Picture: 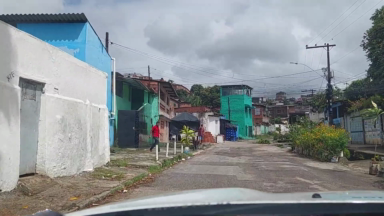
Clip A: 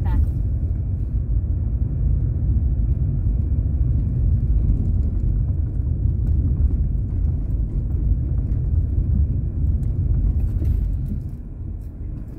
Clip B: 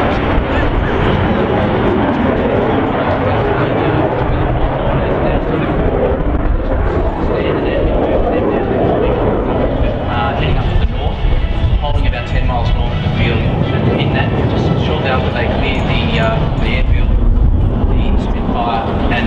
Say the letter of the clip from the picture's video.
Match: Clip A